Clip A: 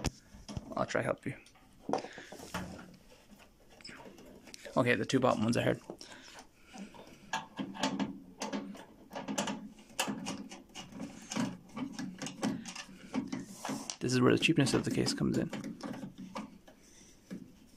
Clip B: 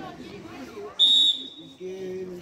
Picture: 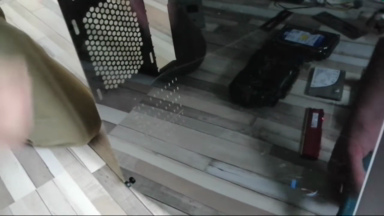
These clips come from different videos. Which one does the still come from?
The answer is A